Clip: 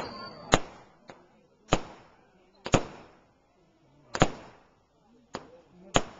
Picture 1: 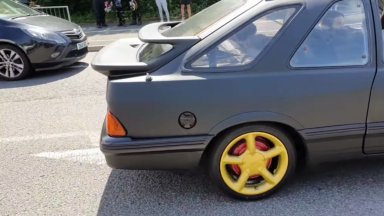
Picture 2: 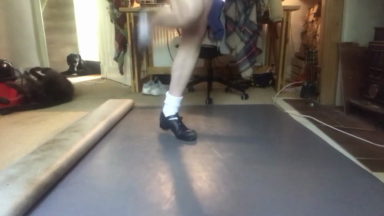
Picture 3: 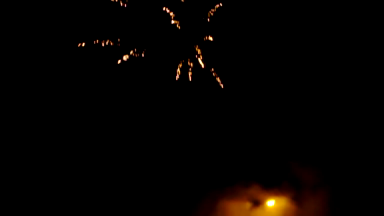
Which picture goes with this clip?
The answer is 3